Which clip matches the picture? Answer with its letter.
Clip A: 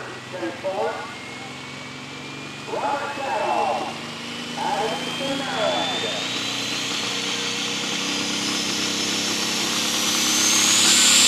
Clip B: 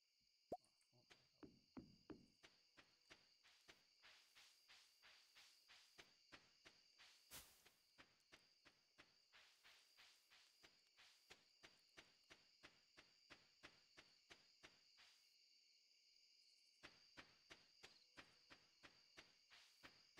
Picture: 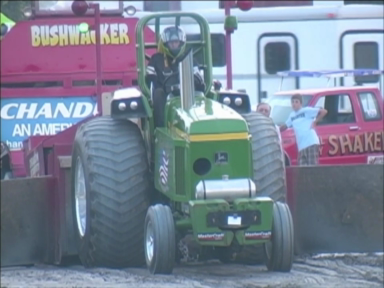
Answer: A